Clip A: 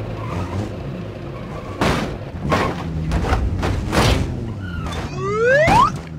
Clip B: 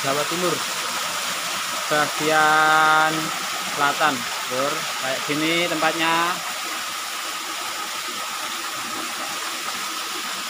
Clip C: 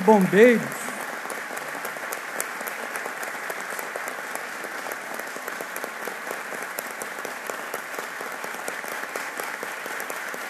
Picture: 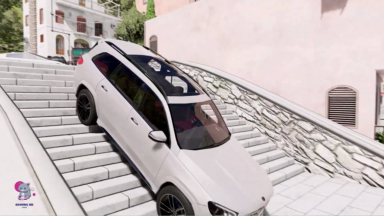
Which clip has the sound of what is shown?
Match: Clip A